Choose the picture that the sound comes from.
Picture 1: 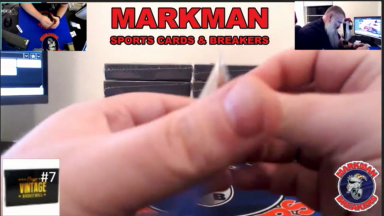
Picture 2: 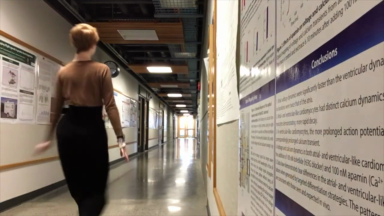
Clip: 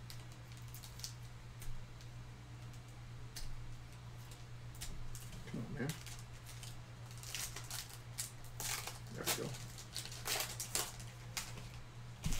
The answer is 1